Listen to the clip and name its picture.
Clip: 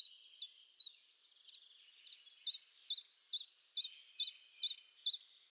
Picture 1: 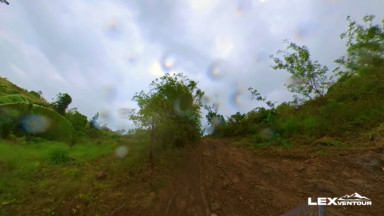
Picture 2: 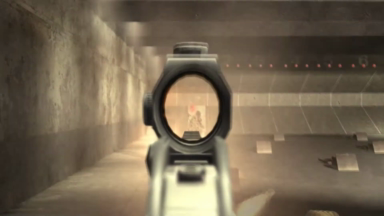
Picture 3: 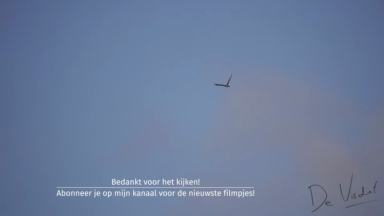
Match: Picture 3